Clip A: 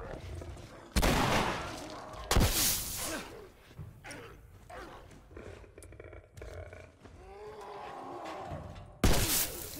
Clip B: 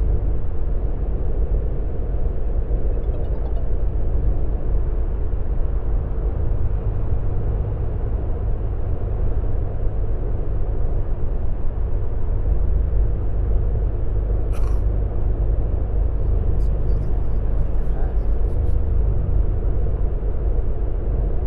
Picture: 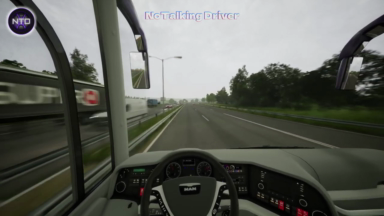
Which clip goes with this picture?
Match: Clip B